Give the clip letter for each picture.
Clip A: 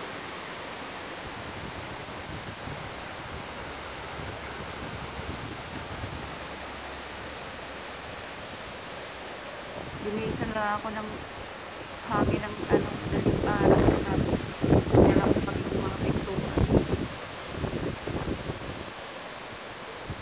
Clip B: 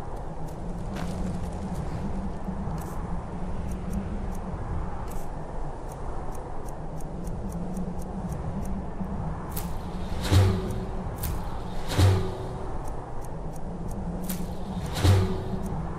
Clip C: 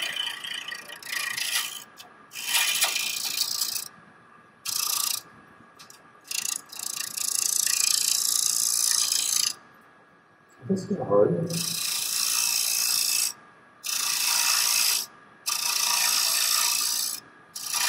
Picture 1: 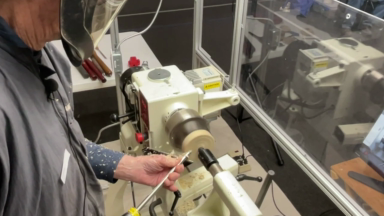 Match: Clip C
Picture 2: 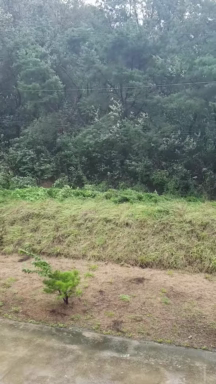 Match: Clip A